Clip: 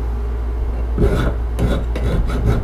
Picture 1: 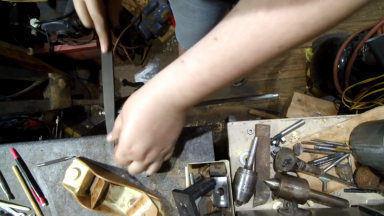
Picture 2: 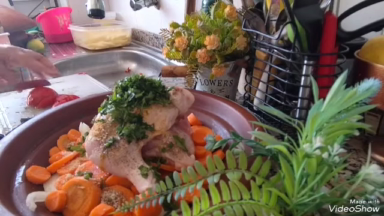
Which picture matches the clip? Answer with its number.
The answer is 1